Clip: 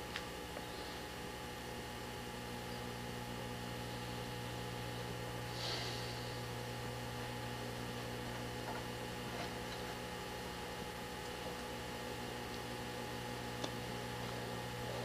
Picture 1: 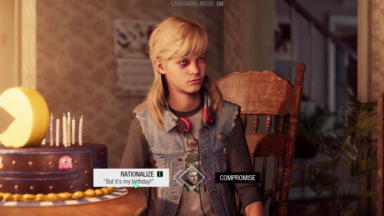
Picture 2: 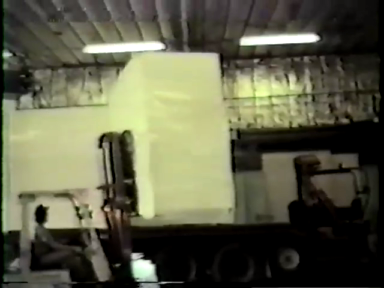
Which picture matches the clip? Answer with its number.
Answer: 2